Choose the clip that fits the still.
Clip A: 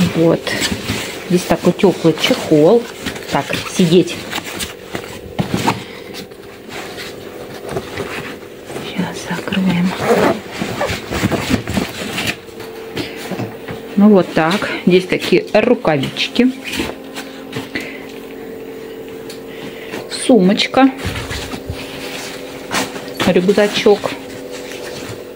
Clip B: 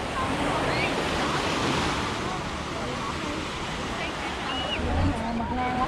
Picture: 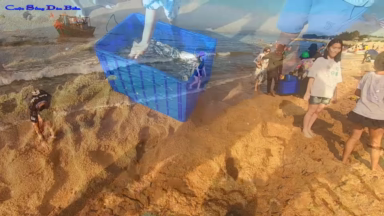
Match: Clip B